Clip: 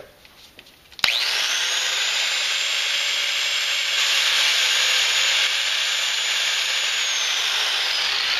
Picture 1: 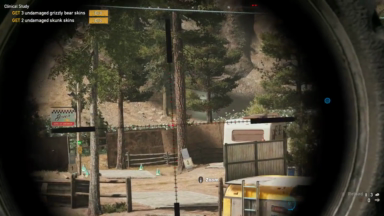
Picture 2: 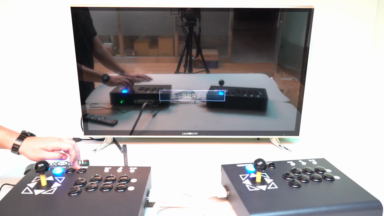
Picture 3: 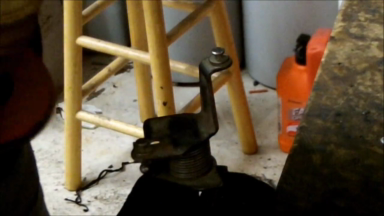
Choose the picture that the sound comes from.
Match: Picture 3